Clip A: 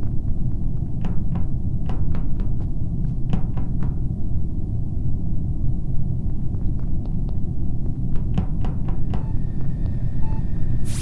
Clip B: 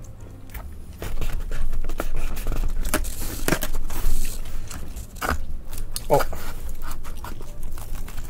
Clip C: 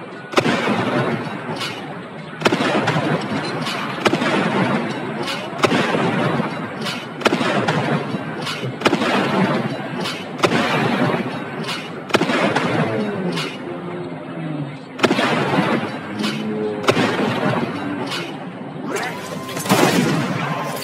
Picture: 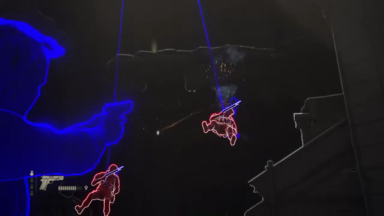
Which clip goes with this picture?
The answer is C